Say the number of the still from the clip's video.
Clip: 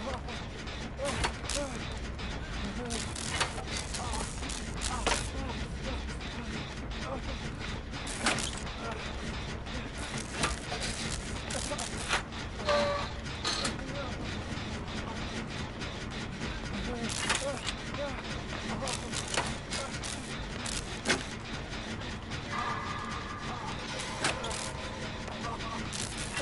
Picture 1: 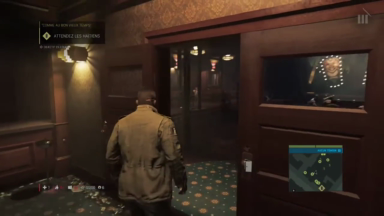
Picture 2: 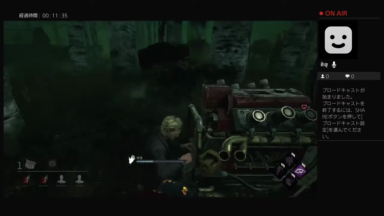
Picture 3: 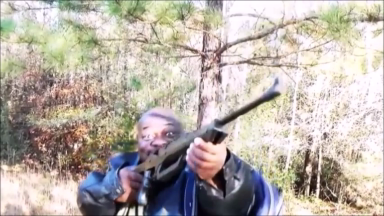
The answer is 2